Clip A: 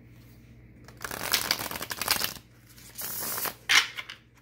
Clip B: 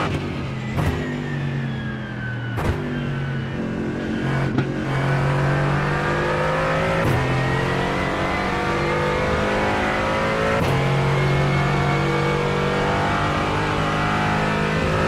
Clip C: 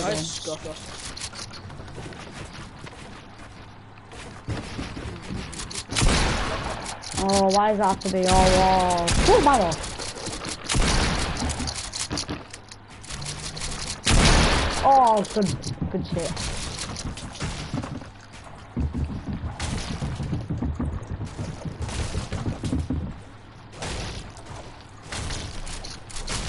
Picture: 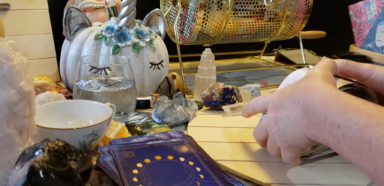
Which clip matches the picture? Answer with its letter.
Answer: A